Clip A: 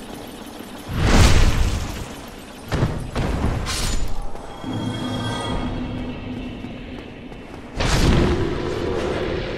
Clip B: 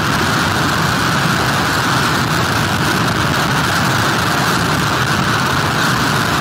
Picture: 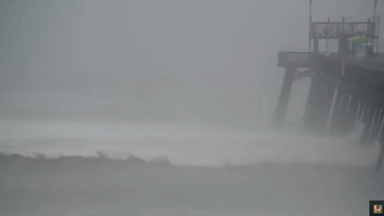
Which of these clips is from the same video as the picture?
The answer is B